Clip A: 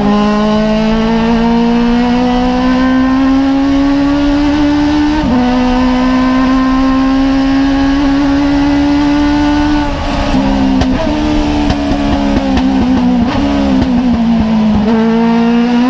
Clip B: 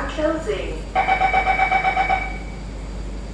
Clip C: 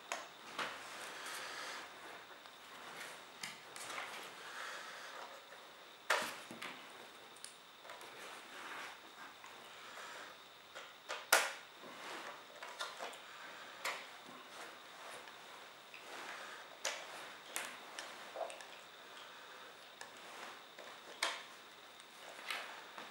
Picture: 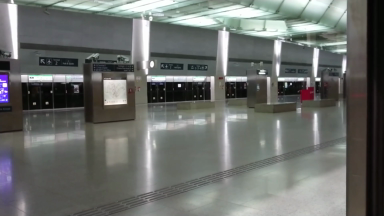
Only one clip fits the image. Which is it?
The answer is B